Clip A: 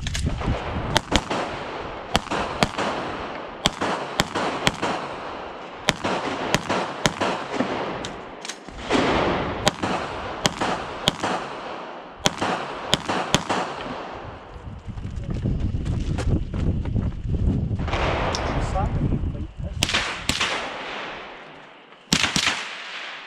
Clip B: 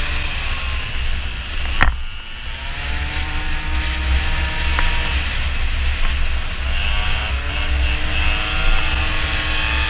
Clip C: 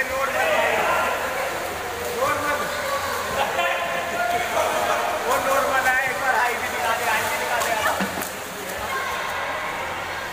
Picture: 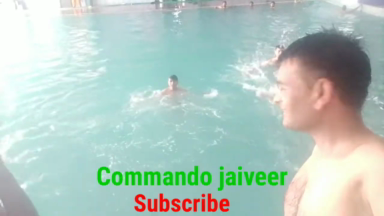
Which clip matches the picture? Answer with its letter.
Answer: C